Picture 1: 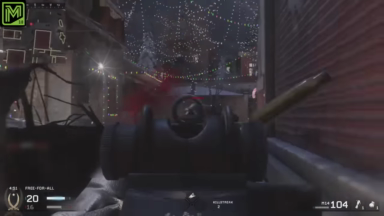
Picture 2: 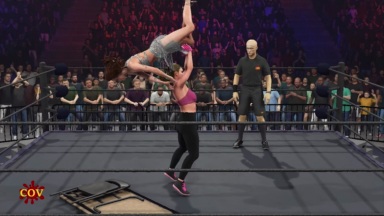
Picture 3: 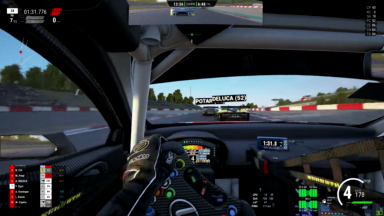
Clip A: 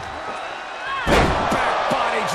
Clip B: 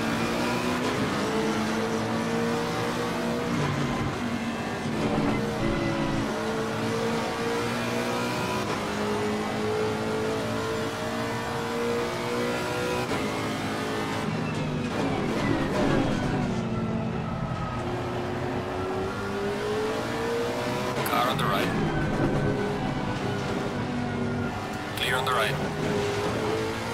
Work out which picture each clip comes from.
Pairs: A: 2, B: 3